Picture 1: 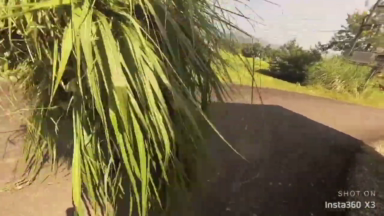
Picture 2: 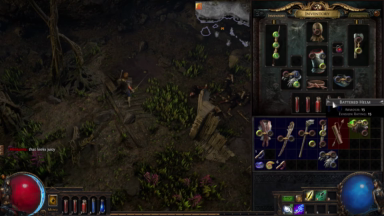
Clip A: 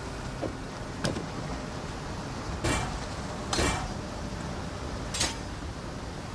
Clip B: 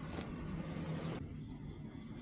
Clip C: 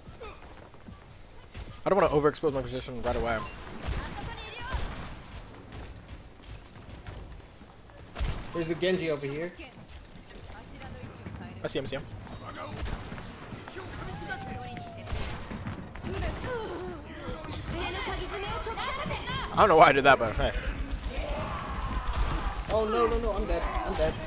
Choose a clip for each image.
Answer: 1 B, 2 A